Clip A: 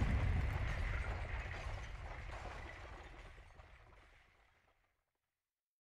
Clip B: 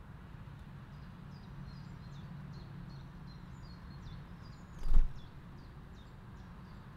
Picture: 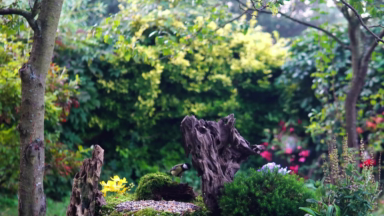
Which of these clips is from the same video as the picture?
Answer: B